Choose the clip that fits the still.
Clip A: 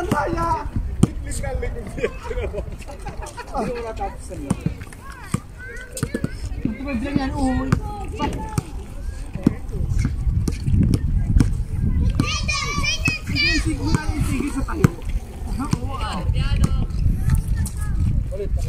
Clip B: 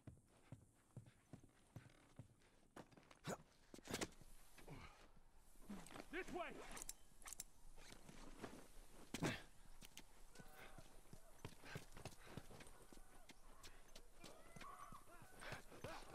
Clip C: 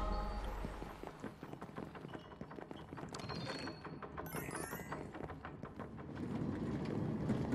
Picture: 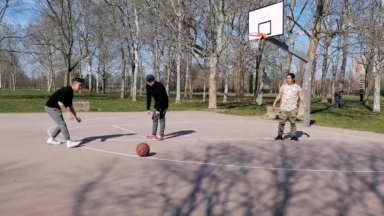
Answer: A